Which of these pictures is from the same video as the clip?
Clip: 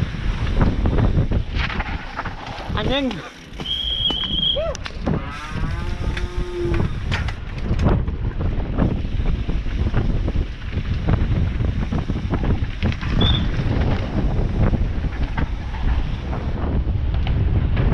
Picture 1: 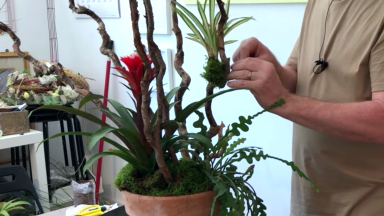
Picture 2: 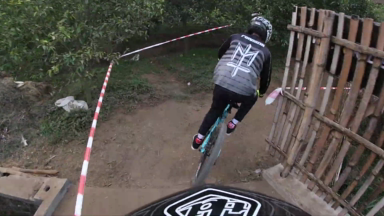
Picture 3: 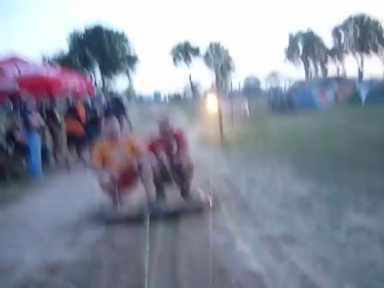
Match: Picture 2